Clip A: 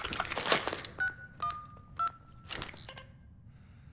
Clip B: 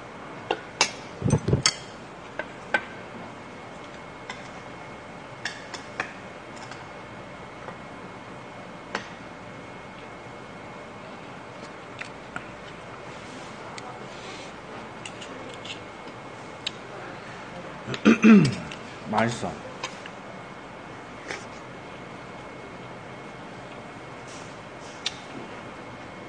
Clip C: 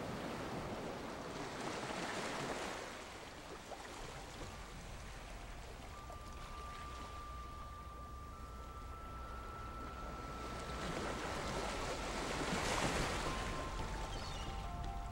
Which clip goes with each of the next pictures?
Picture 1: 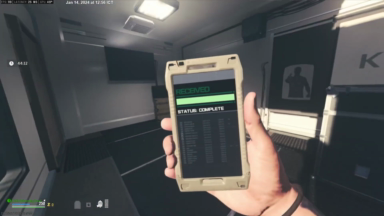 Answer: A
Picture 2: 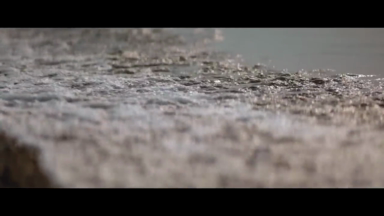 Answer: C